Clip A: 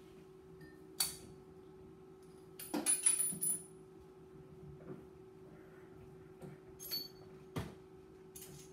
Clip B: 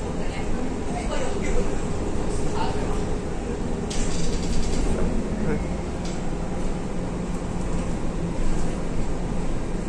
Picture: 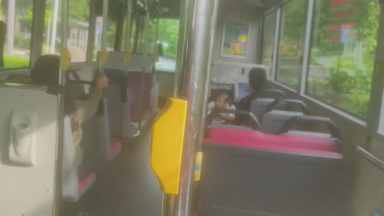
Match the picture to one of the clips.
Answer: B